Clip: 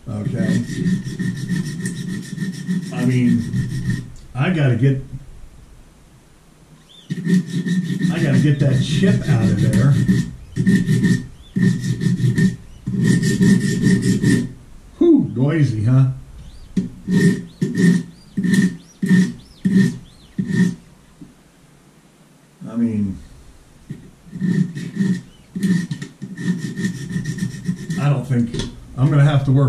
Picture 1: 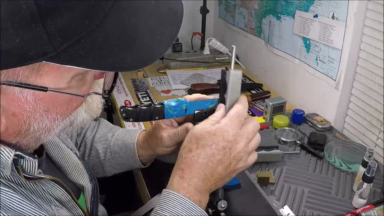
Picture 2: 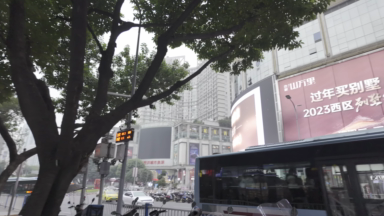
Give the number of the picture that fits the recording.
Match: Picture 1